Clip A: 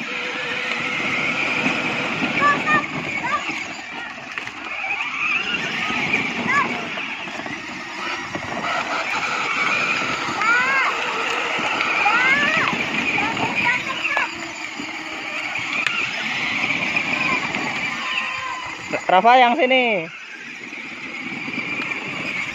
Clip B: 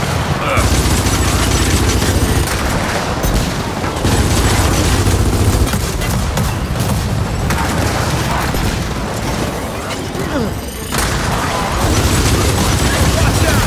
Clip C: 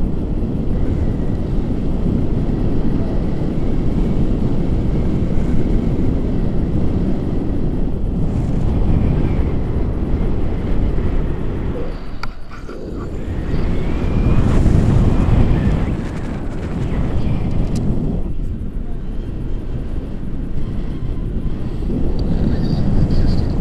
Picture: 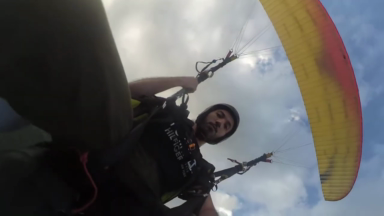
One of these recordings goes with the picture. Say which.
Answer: C